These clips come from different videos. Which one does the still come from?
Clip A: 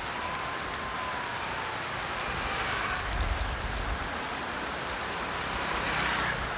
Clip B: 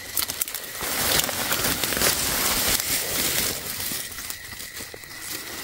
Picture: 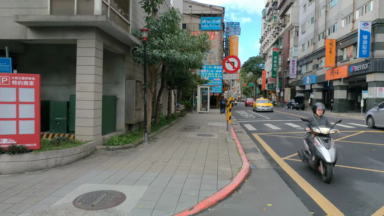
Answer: A